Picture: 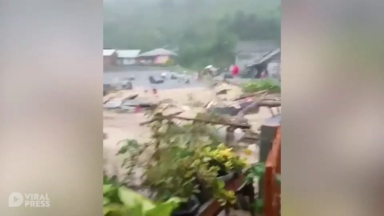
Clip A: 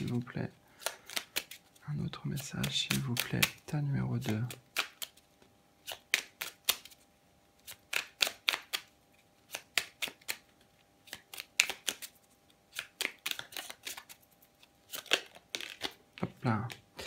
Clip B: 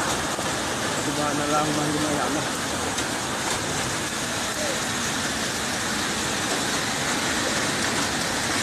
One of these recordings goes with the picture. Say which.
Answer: B